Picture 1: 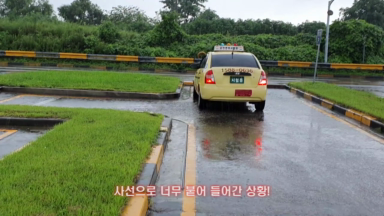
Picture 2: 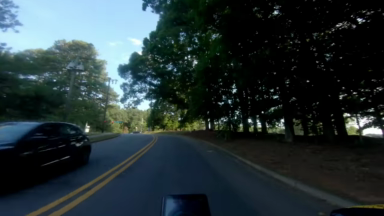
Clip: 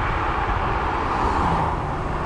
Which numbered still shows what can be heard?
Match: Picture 2